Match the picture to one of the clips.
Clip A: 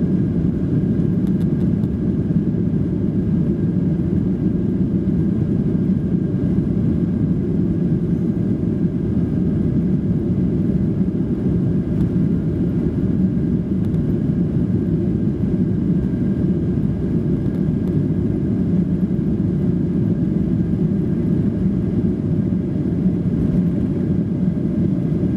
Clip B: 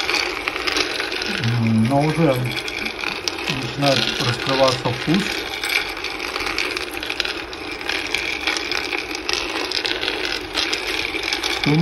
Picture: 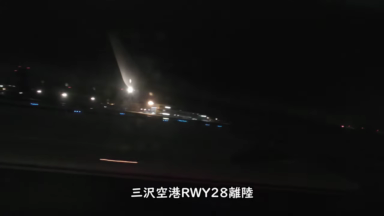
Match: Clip A